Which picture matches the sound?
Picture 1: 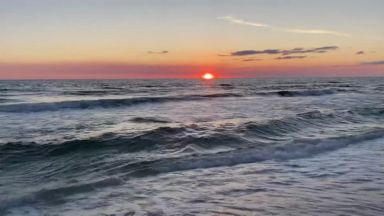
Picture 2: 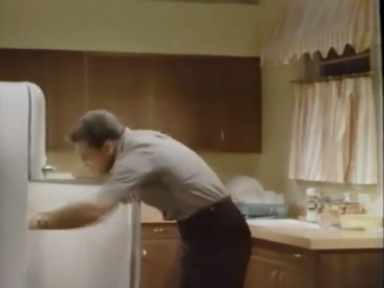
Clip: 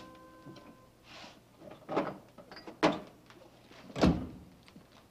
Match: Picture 2